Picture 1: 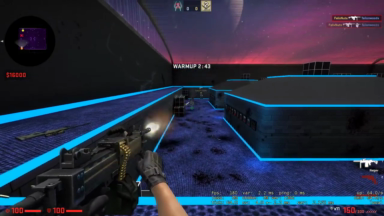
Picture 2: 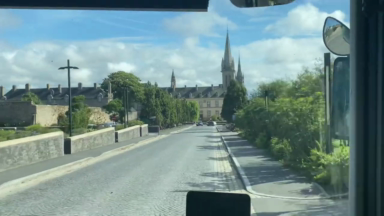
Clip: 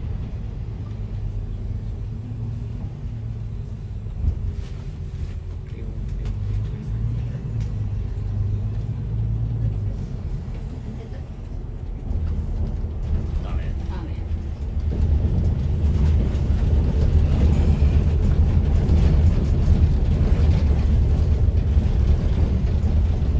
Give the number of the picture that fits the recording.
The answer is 2